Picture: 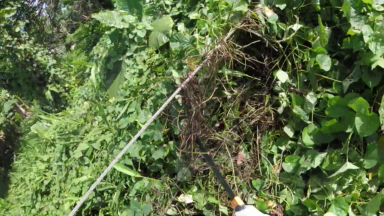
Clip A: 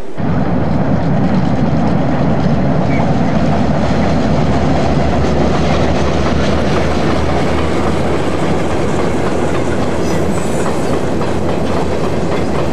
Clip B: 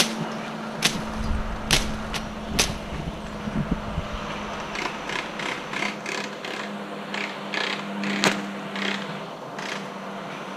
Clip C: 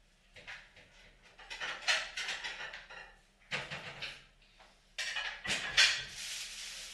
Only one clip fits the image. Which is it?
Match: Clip B